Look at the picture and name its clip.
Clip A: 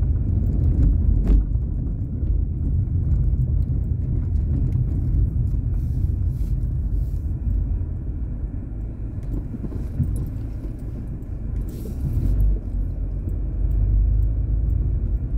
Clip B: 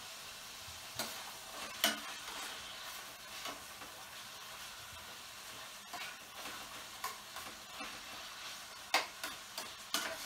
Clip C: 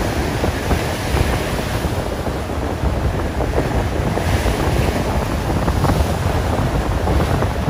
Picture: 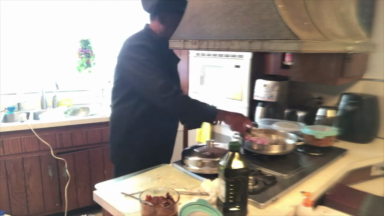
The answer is B